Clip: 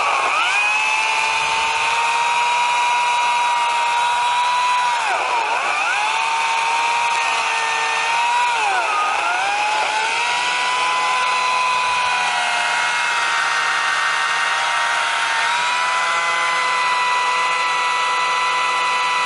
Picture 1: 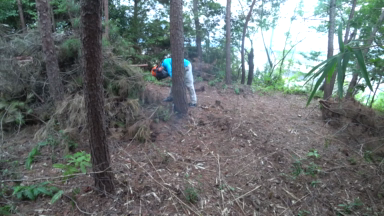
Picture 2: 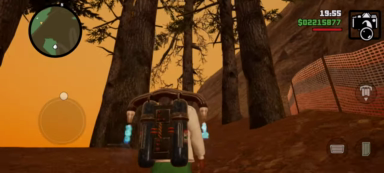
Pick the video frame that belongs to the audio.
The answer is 1